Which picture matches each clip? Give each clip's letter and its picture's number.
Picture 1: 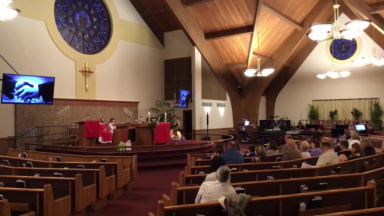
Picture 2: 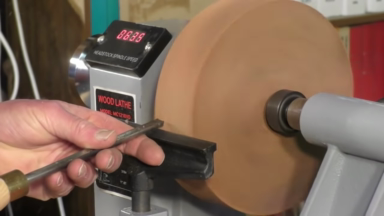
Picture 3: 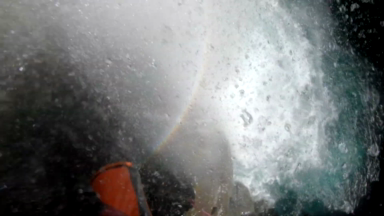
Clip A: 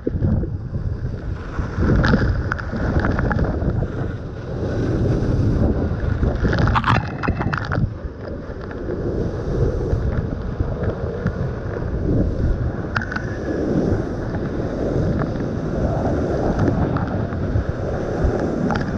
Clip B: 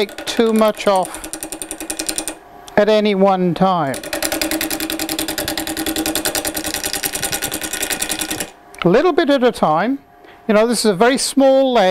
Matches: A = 3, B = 2